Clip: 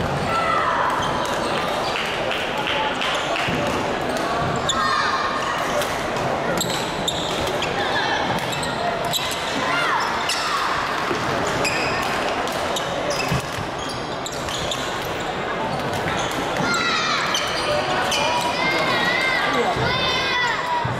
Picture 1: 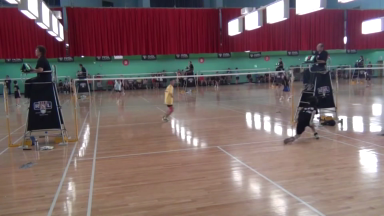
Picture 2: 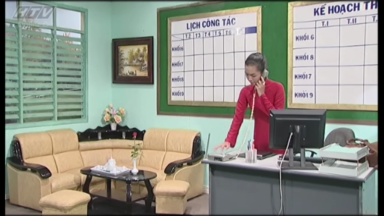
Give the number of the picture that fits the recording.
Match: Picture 1